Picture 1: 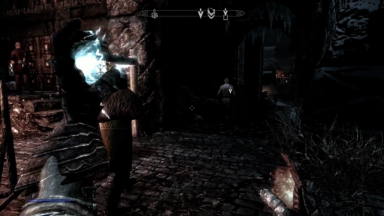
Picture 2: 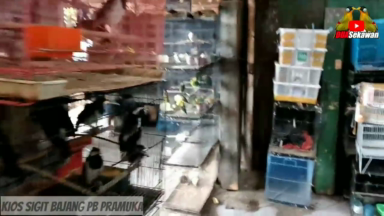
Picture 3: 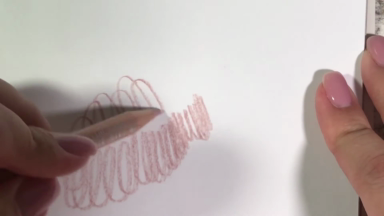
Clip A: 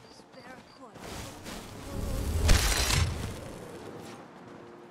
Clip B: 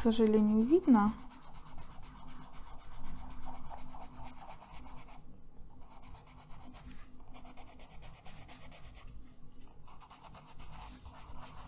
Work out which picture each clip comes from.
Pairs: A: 1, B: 3